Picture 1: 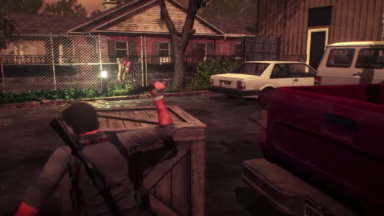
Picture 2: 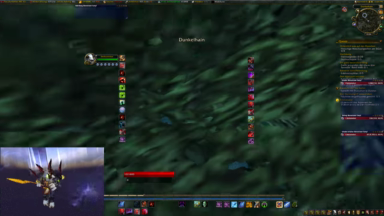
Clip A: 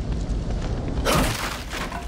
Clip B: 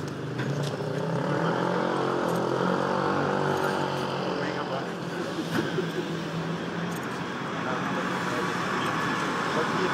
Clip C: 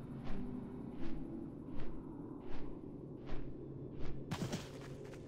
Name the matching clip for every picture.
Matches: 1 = A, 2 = C